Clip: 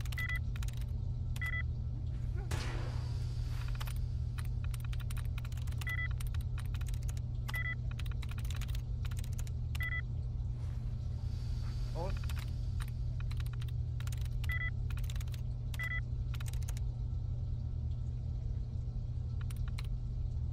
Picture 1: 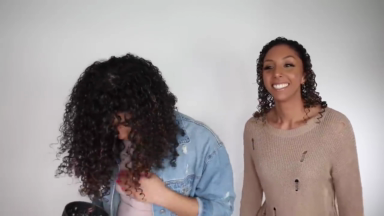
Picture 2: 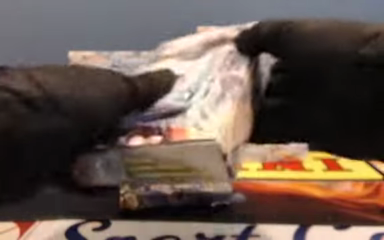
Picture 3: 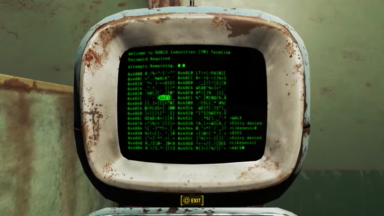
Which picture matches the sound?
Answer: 3